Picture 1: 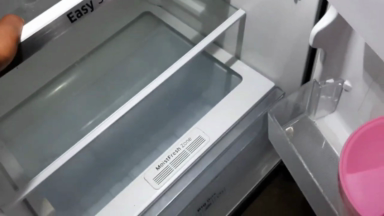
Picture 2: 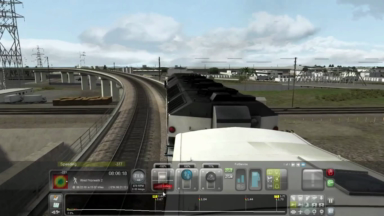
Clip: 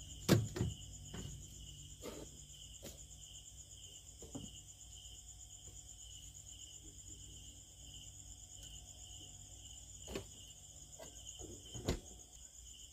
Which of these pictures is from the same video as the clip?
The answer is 1